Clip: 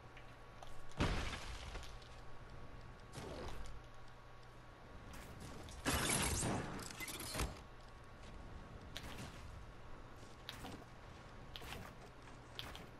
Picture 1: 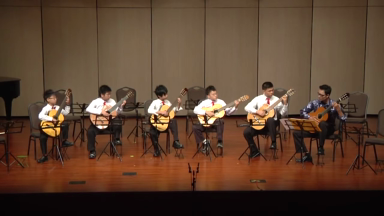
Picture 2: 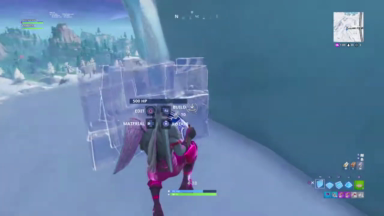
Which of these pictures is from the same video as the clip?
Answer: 2